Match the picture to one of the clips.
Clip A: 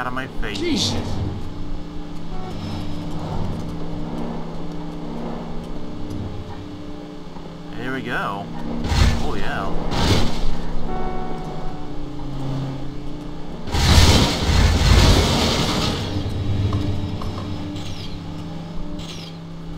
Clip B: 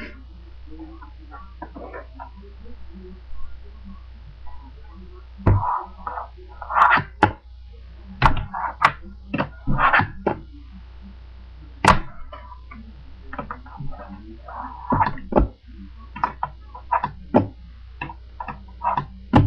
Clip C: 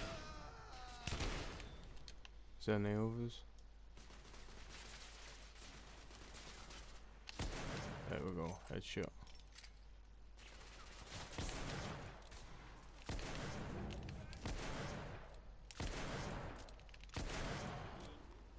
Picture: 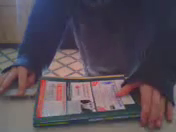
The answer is B